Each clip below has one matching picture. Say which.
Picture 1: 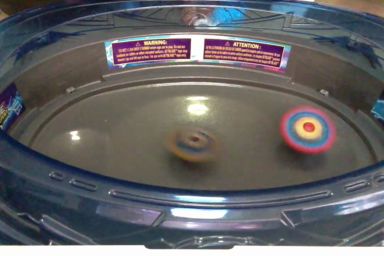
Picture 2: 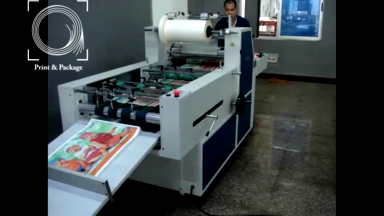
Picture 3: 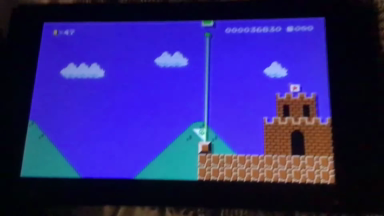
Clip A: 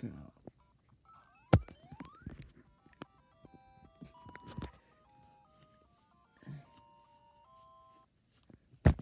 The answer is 3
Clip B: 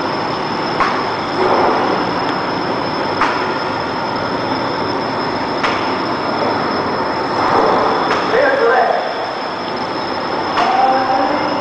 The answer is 2